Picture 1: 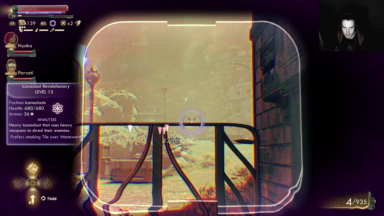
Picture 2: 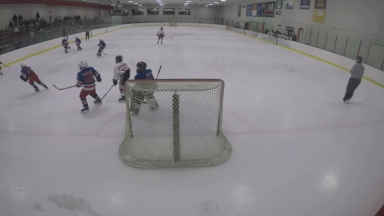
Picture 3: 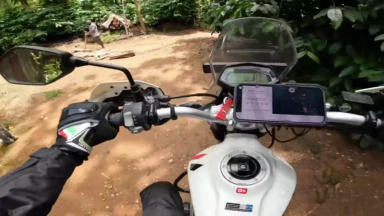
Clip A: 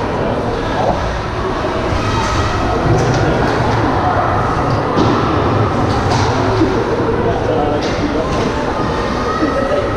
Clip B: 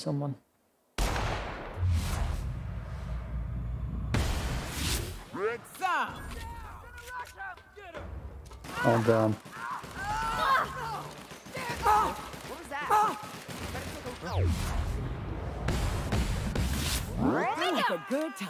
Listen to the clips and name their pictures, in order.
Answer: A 2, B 1